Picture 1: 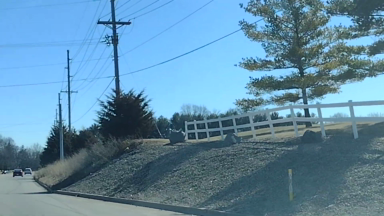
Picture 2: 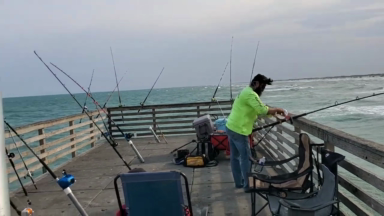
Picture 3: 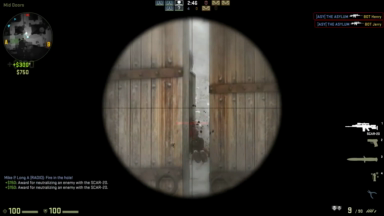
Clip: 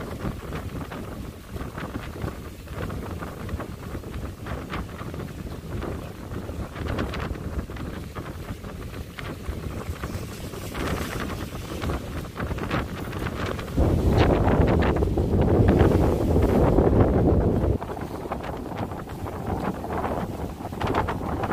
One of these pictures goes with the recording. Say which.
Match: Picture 2